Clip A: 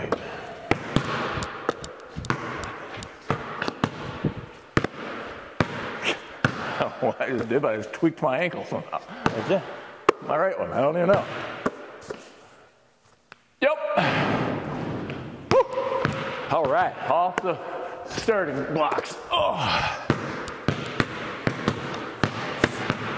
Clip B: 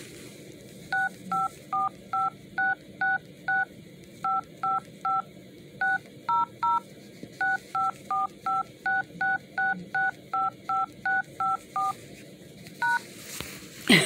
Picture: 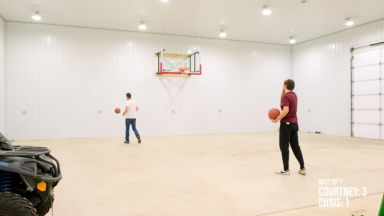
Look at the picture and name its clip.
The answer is A